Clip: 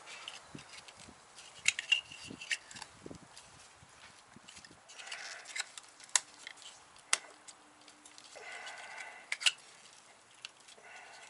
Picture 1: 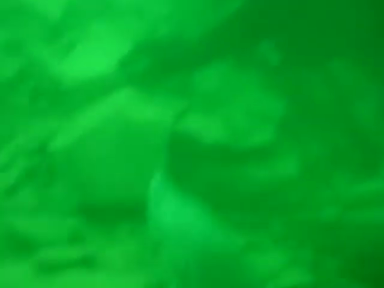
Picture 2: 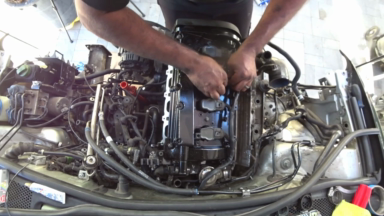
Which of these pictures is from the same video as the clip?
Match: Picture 2